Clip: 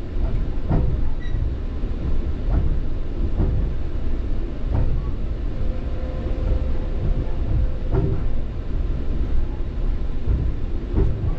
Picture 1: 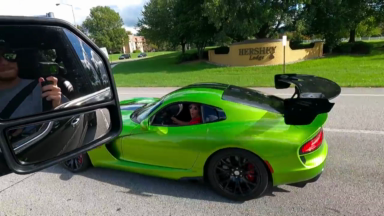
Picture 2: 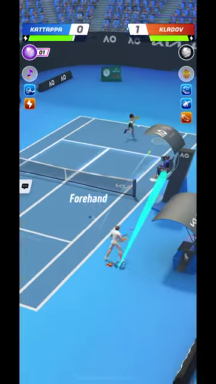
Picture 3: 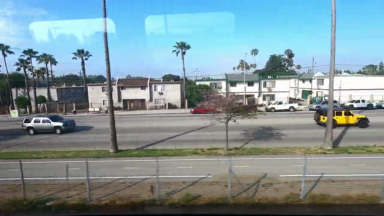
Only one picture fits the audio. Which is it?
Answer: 3